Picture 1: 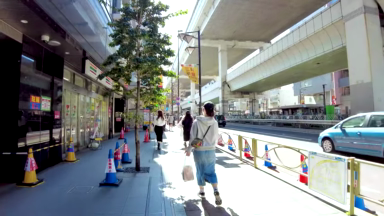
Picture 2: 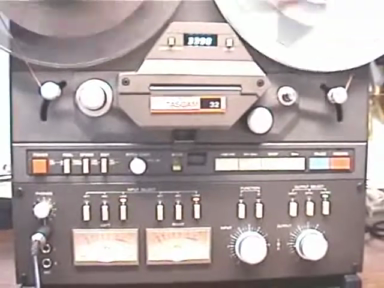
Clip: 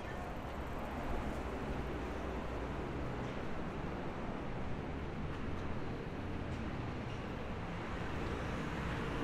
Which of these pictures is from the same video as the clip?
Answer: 1